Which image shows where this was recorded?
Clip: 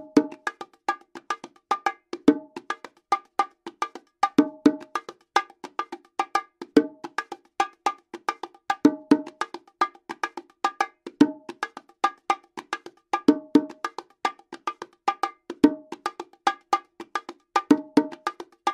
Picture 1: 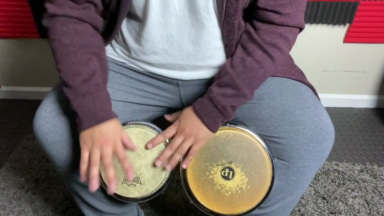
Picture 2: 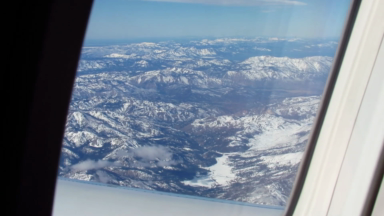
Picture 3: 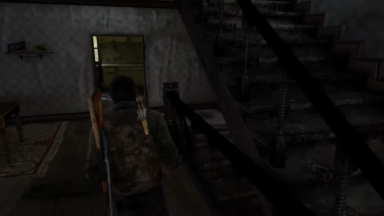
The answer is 1